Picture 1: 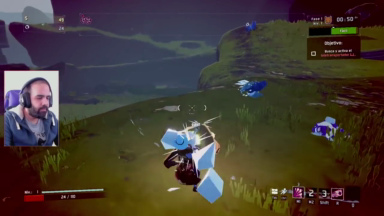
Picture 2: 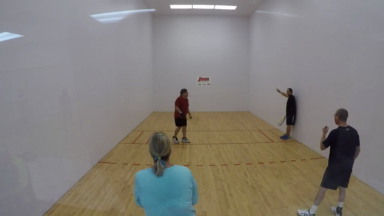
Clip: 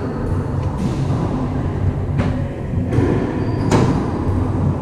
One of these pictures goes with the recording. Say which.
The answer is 2